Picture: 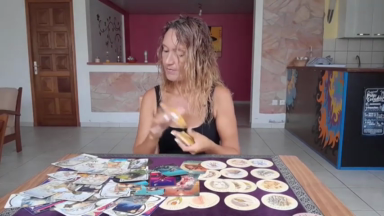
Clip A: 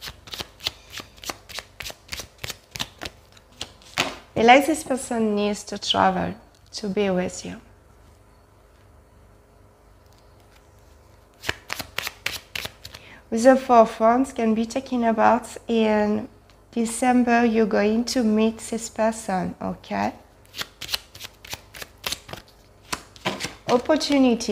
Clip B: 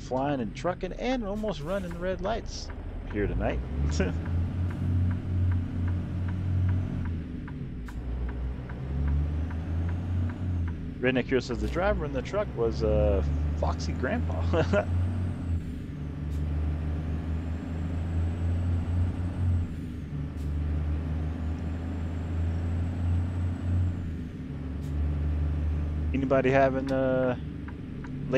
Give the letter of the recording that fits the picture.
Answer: A